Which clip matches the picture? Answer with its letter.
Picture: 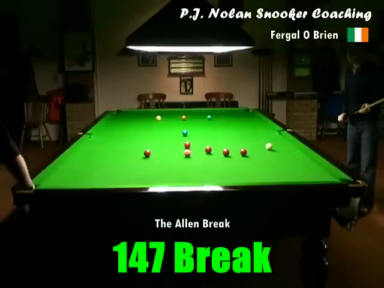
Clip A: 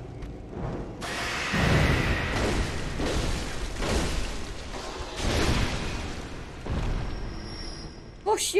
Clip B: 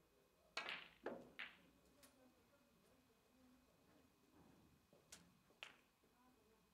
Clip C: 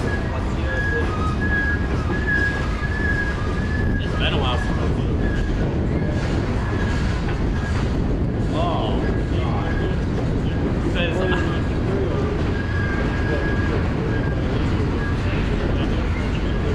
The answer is B